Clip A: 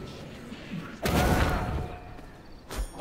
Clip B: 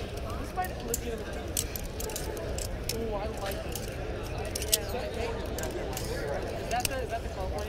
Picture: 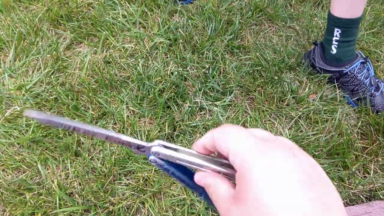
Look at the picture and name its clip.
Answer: B